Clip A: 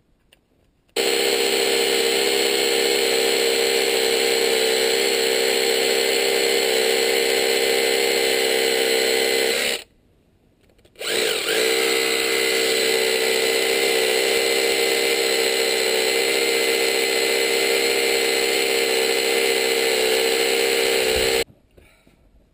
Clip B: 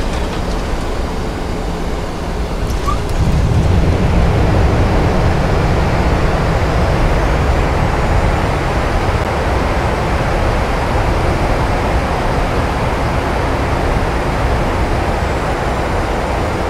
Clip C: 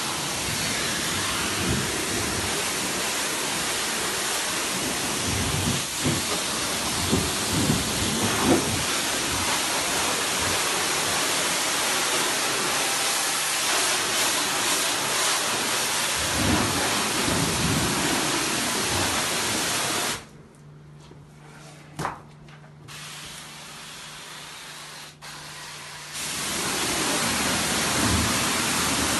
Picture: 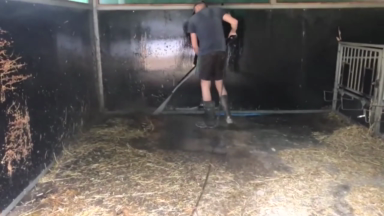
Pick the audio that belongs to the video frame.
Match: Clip C